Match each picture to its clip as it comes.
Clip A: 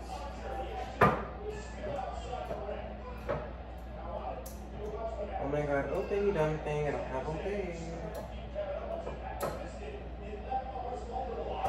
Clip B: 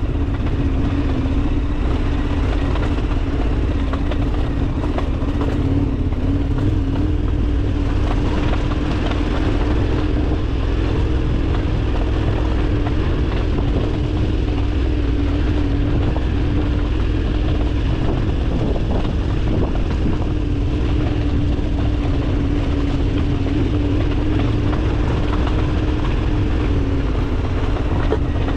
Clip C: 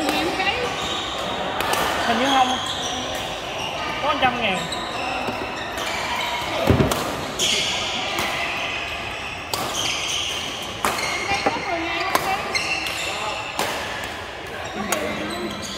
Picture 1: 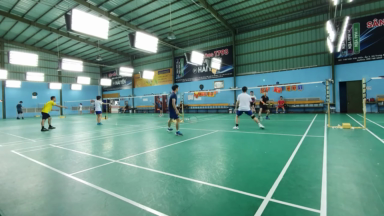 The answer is C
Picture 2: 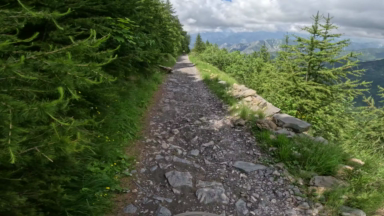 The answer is B